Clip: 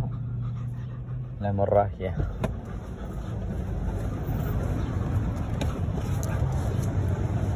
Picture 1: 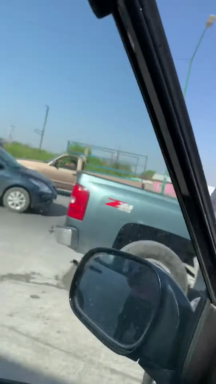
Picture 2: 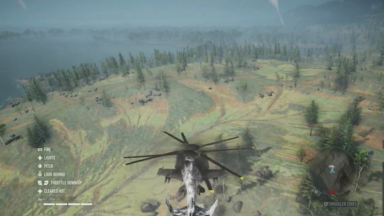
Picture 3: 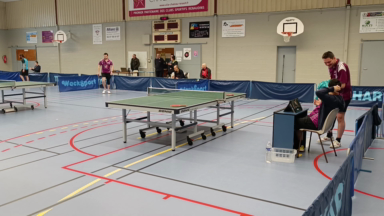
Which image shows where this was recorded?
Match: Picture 1